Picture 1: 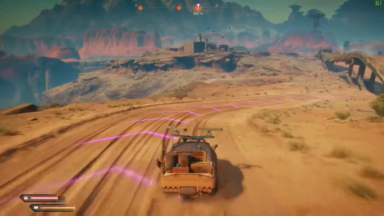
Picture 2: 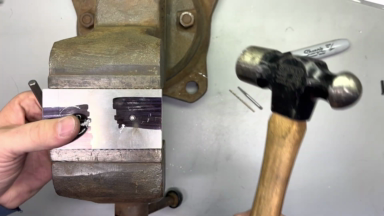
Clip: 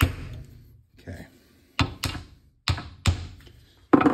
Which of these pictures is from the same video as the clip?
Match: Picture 2